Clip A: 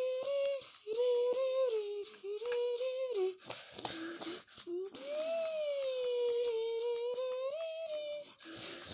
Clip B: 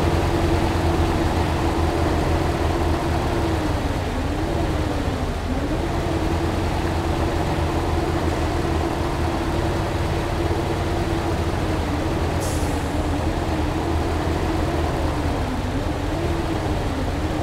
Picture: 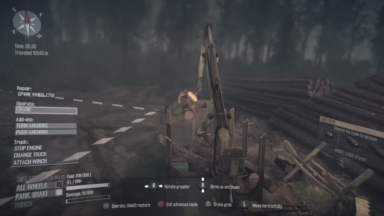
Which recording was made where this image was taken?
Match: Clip B